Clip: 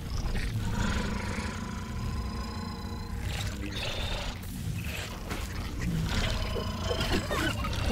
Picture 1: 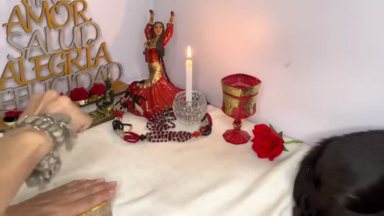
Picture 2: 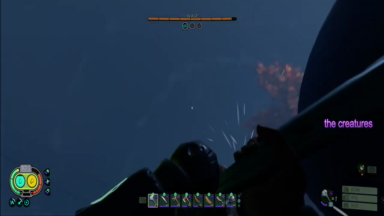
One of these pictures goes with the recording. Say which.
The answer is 2